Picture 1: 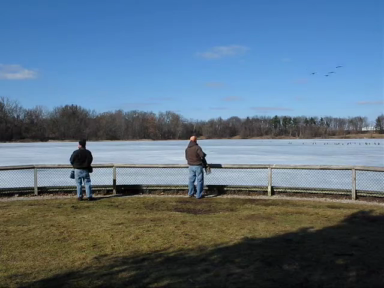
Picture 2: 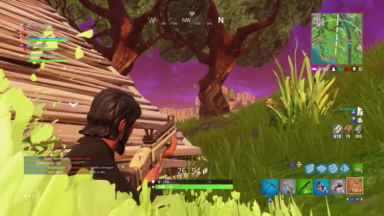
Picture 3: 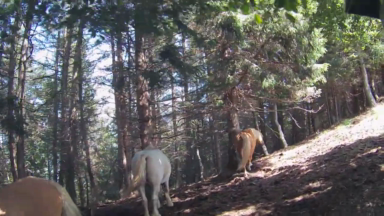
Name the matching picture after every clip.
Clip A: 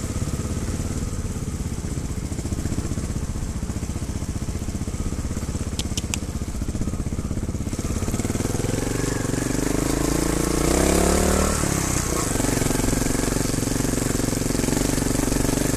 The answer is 3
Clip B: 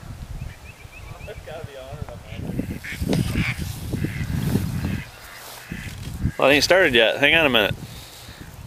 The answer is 1